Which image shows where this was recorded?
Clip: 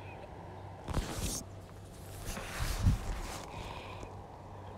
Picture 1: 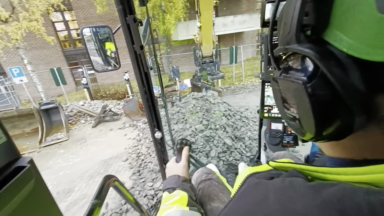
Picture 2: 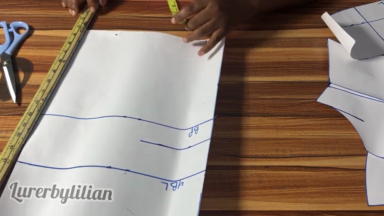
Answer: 2